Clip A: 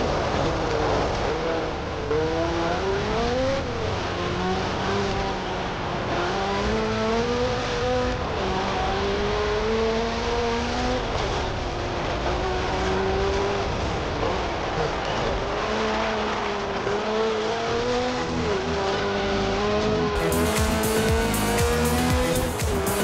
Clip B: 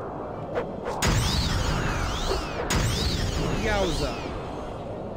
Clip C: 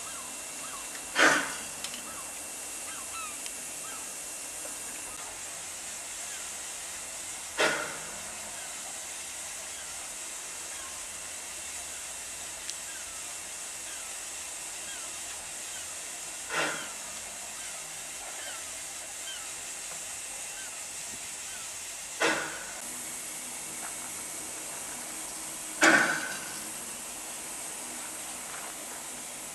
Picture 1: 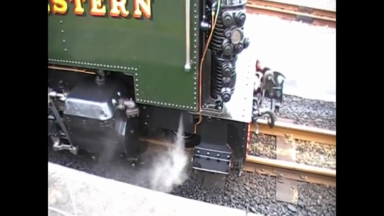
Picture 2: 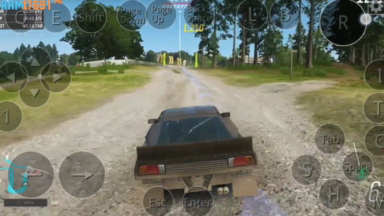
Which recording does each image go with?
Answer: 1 C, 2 A